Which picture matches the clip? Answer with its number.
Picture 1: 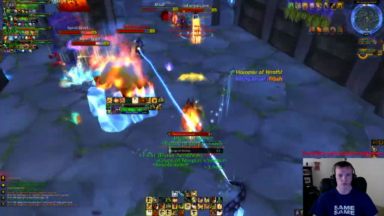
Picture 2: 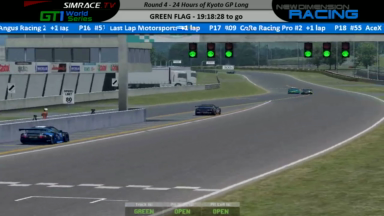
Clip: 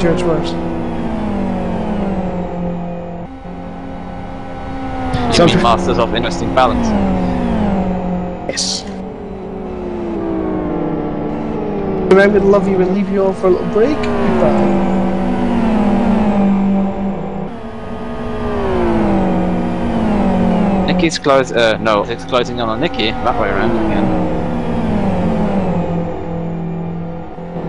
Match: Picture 2